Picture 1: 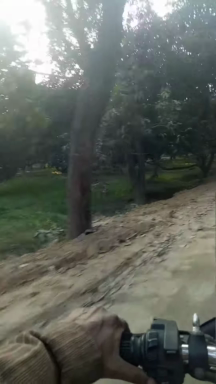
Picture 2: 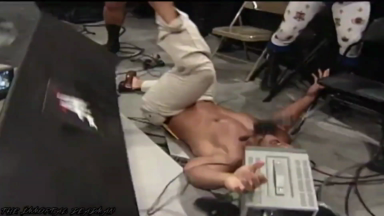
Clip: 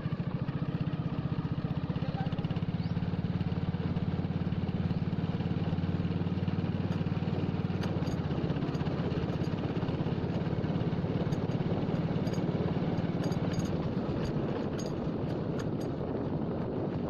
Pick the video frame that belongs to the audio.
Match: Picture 1